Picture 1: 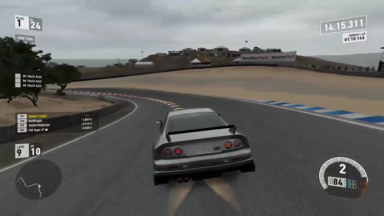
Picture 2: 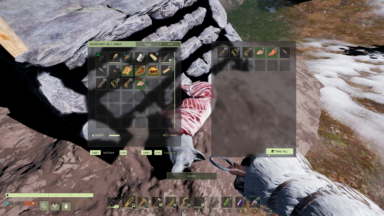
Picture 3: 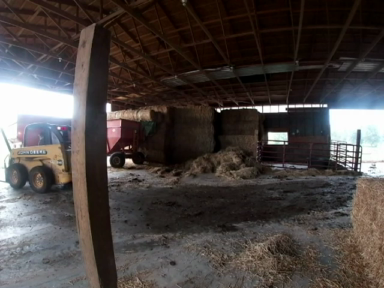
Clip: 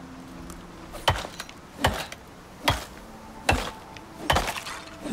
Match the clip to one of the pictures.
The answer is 2